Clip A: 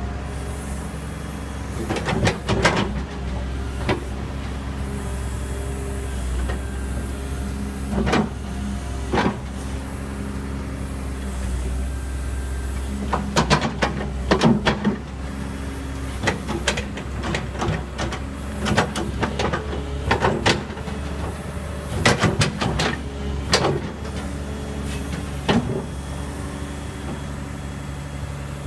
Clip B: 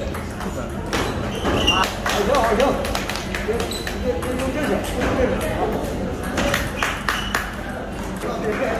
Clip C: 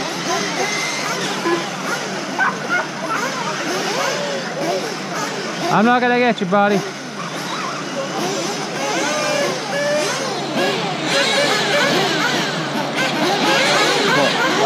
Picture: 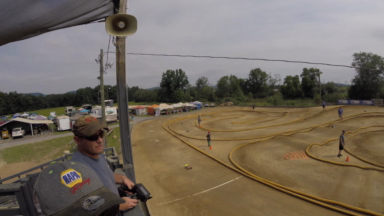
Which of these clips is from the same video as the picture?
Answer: C